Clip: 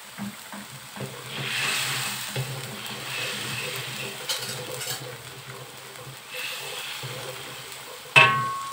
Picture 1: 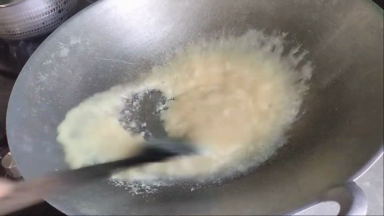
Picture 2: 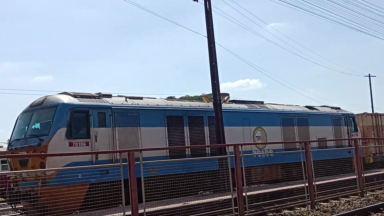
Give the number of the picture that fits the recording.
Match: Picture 1